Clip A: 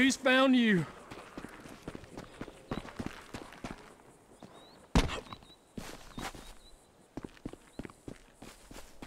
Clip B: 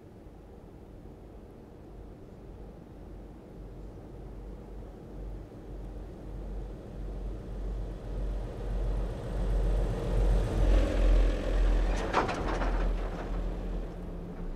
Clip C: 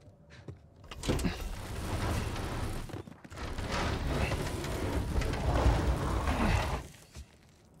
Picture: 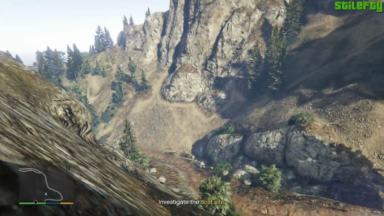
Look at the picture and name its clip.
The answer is A